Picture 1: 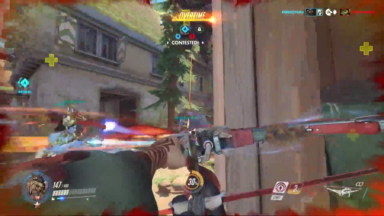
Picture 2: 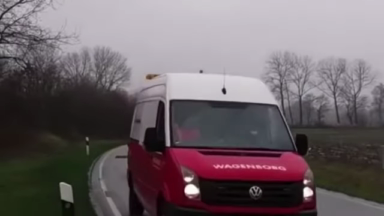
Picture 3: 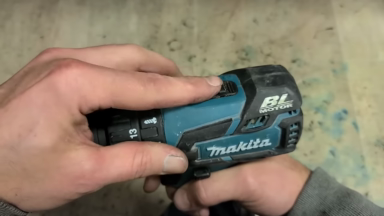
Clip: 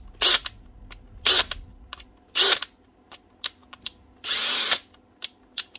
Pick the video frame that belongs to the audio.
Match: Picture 3